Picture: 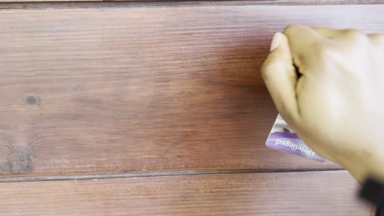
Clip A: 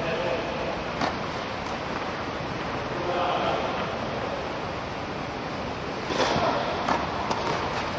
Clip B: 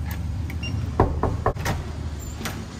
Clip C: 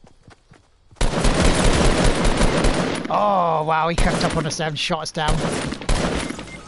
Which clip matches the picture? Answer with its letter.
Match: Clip B